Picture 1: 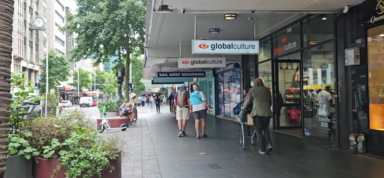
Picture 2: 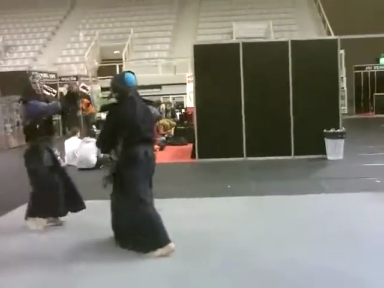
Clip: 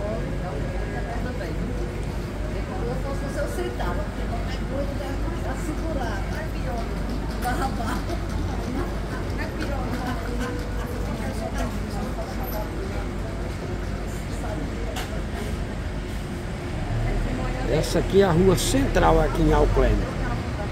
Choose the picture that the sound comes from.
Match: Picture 1